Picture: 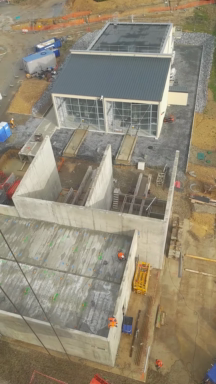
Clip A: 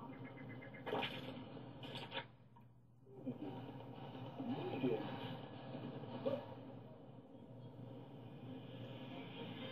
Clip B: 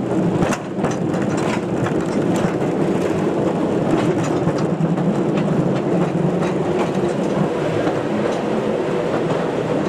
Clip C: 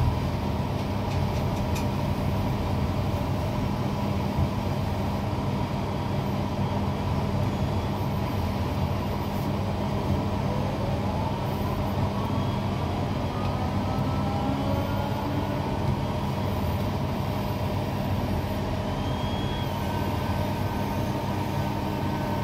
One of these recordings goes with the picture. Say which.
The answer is C